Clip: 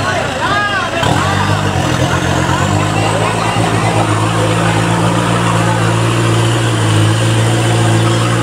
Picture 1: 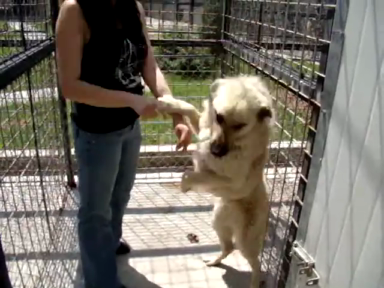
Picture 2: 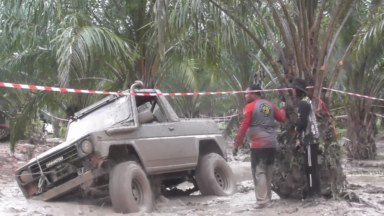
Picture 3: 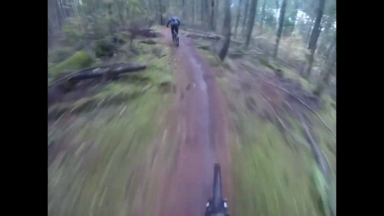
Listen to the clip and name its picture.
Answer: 2